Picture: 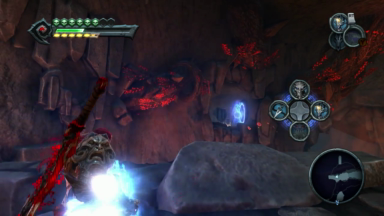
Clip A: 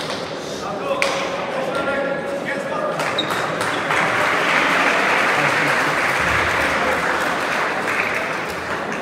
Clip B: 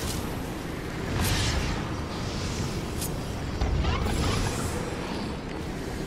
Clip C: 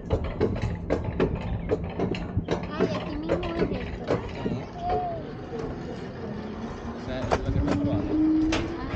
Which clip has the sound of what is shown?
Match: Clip B